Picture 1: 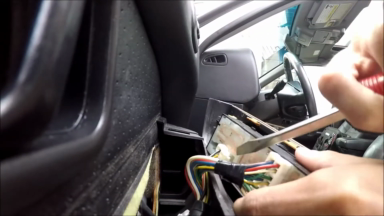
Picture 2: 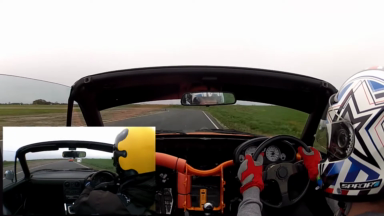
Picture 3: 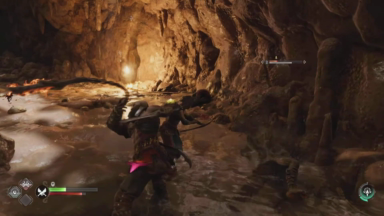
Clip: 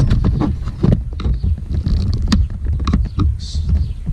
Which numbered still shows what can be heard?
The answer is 1